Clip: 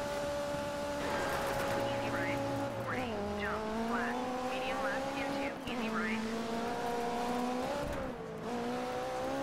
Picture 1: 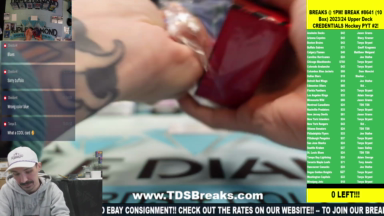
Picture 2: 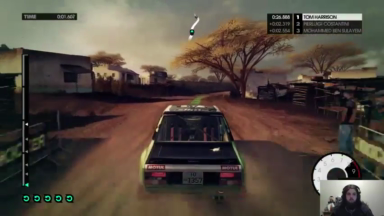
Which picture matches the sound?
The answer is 2